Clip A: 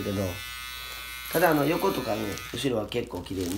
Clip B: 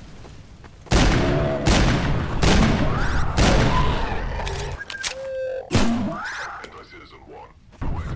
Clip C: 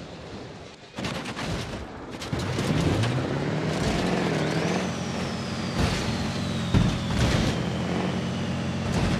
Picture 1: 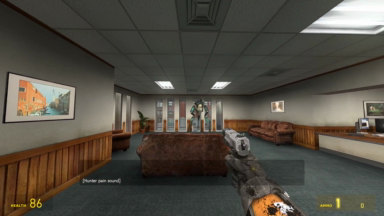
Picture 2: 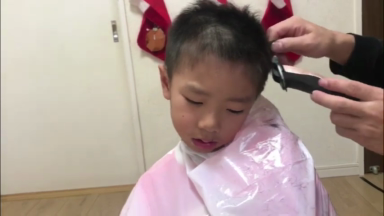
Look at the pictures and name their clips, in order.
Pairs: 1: B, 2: A